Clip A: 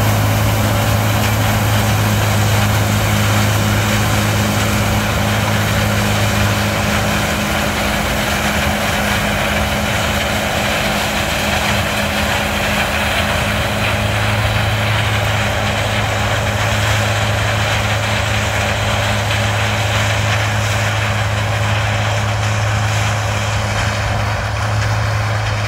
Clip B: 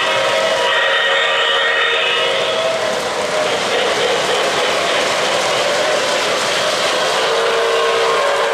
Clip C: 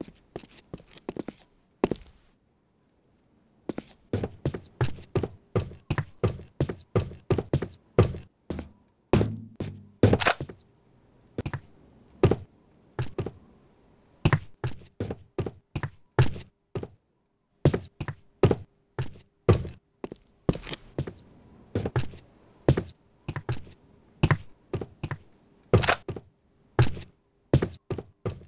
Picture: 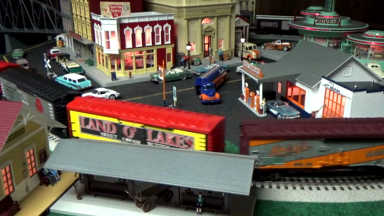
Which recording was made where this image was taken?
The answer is B